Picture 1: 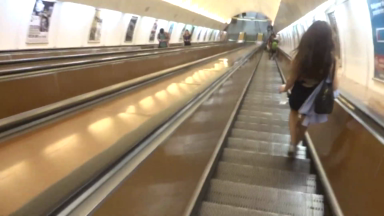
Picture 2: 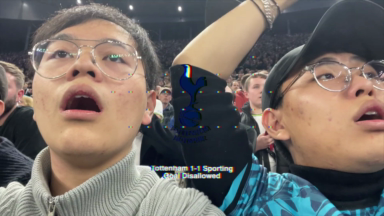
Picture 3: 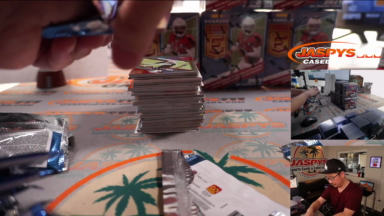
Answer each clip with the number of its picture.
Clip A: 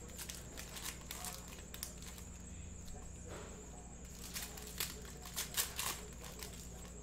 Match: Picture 3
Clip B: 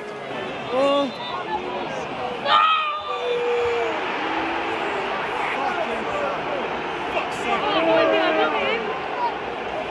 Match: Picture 2